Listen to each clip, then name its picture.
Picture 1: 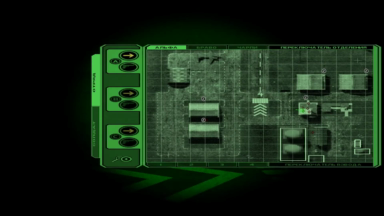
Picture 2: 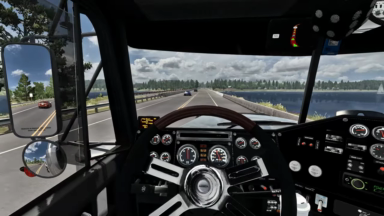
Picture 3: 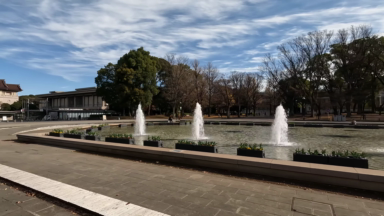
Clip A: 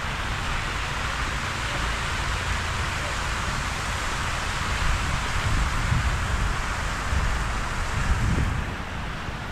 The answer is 3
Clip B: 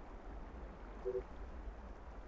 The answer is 1